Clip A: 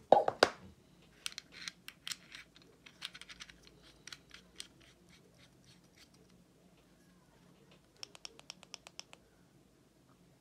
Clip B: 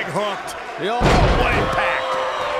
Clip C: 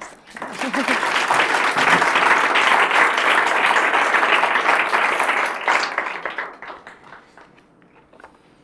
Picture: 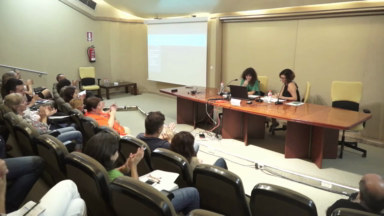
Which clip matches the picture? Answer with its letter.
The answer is C